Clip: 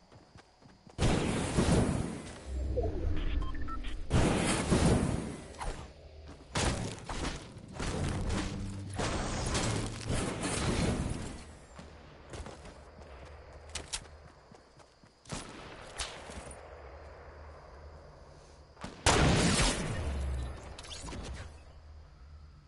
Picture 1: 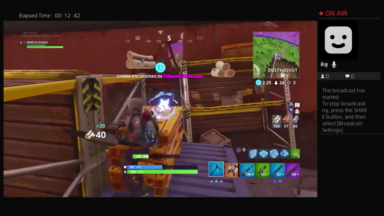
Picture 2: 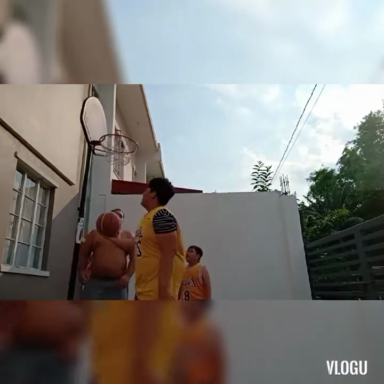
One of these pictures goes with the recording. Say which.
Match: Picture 1